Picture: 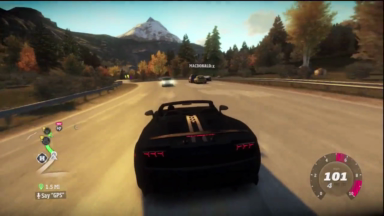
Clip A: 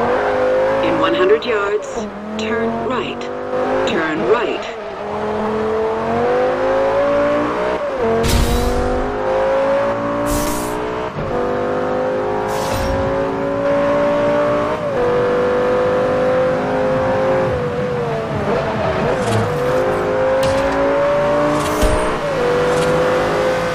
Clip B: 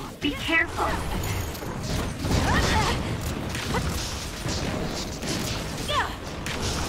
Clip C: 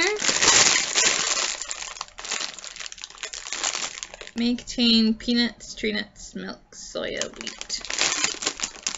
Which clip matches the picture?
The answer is A